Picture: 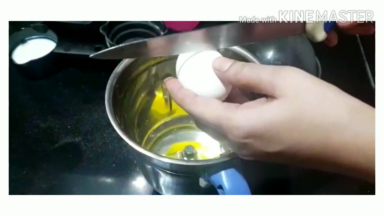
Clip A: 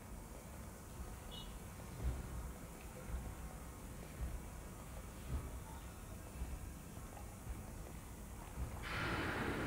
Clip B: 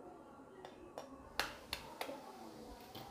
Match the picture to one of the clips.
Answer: B